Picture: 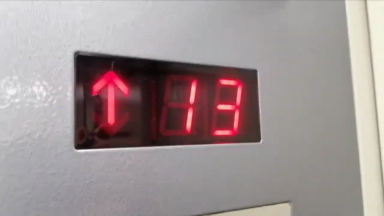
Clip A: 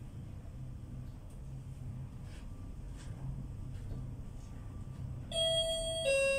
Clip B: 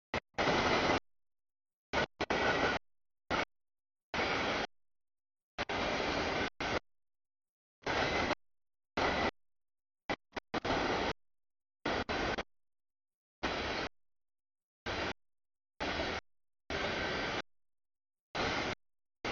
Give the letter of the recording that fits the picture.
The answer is A